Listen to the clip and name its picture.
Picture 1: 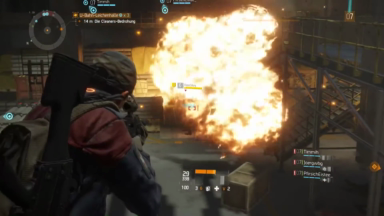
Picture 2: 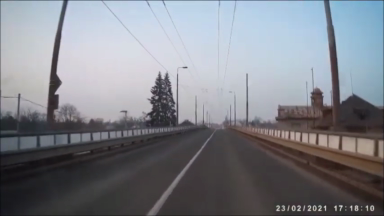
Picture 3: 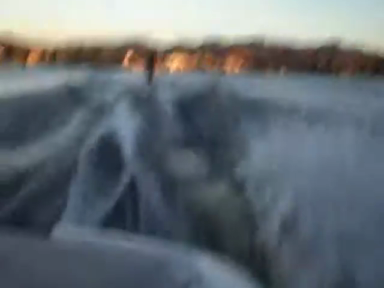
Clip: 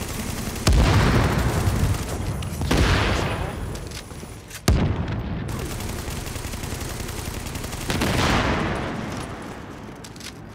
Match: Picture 1